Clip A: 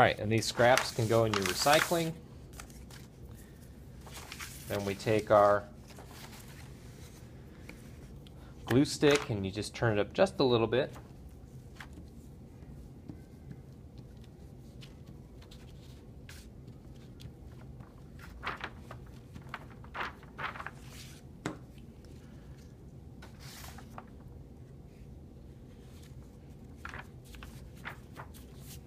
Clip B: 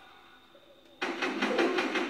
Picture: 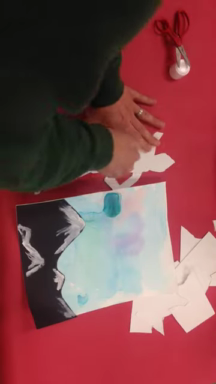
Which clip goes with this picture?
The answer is A